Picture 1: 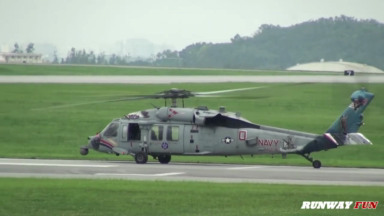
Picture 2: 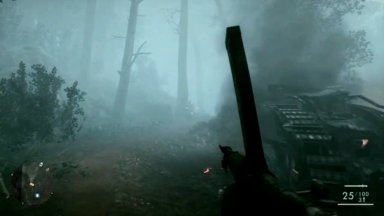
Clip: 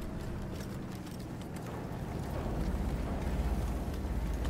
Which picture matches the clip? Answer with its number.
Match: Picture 2